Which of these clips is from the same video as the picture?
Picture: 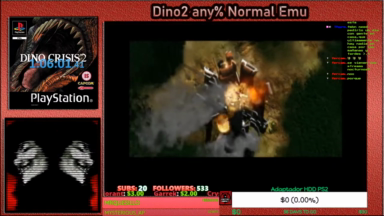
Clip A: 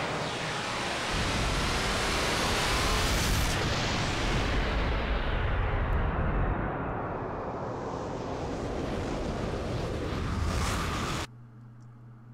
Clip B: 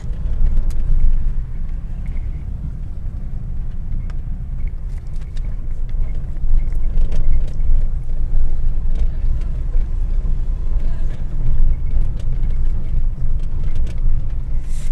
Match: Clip A